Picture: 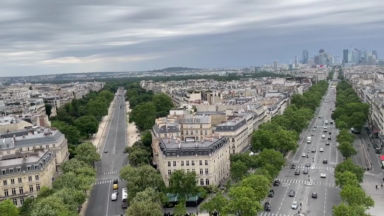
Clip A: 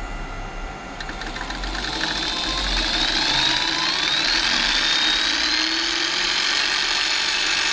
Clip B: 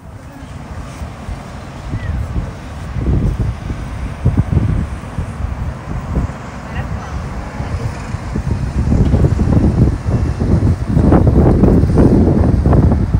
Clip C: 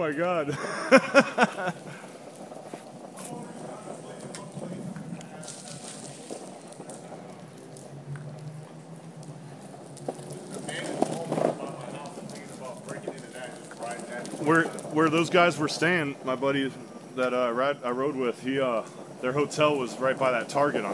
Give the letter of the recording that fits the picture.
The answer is B